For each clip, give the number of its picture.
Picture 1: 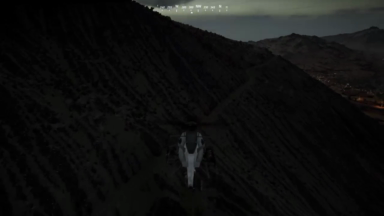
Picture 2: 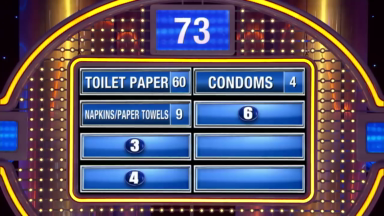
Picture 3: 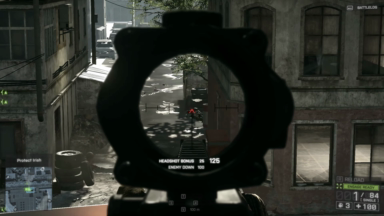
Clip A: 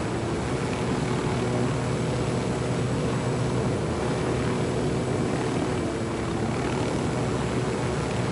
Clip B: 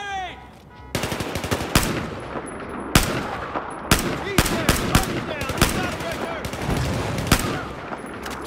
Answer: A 1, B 3